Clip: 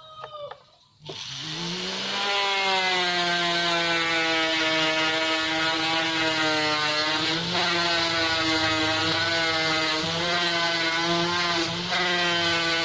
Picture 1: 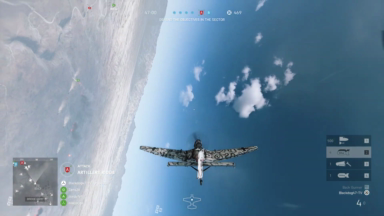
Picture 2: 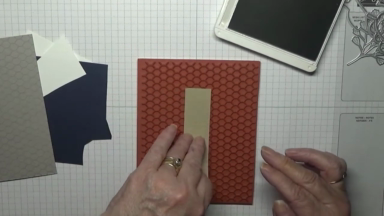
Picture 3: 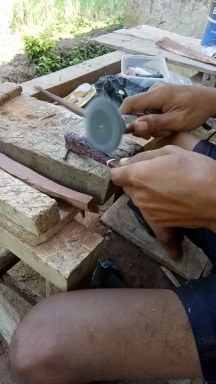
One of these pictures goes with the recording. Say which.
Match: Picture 3